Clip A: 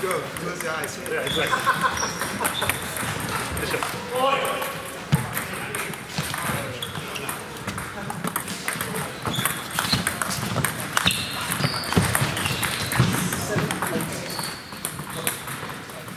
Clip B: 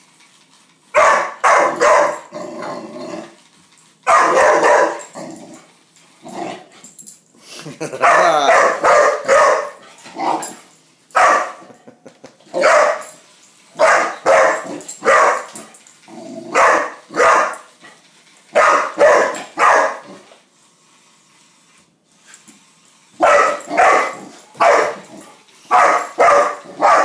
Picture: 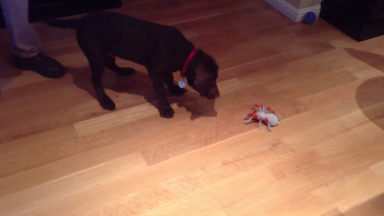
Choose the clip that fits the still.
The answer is B